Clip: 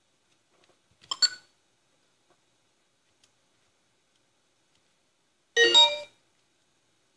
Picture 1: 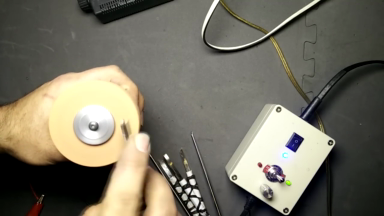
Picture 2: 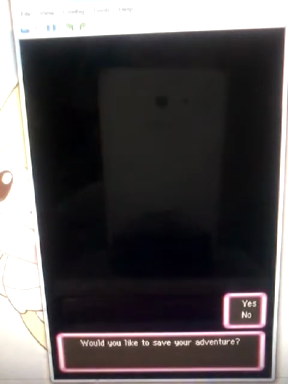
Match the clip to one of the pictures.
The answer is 2